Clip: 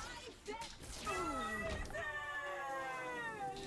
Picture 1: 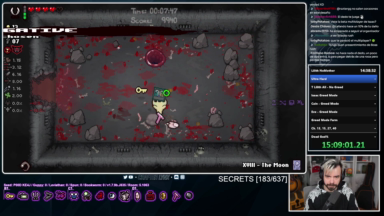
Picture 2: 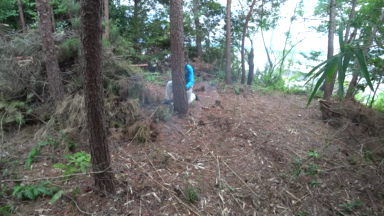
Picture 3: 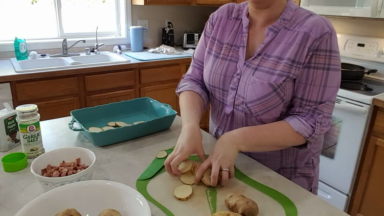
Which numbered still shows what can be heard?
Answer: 1